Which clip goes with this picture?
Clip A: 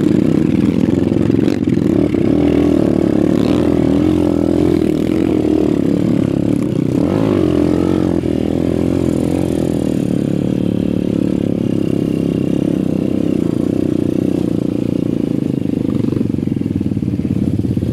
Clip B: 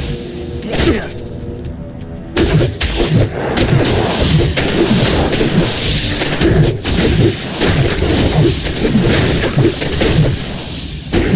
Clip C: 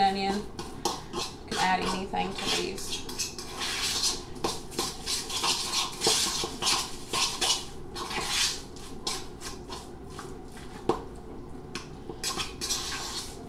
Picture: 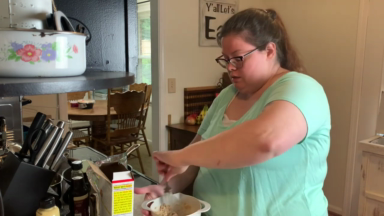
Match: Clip C